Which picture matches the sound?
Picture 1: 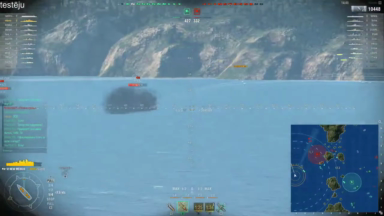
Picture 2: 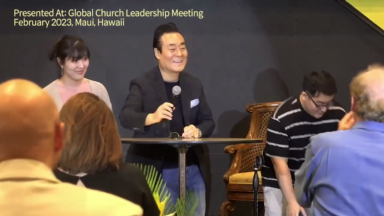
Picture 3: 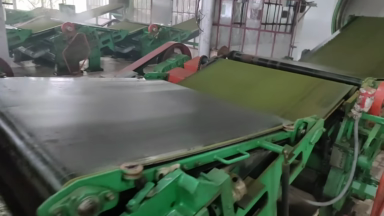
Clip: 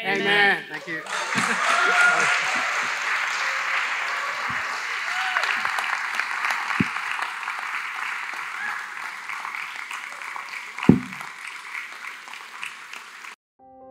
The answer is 2